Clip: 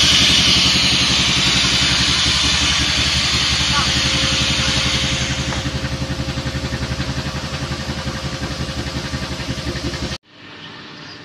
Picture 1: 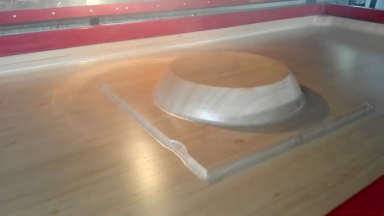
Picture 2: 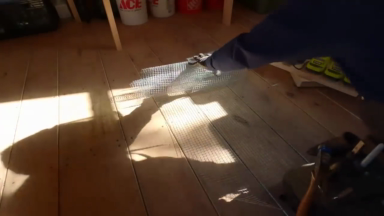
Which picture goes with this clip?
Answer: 1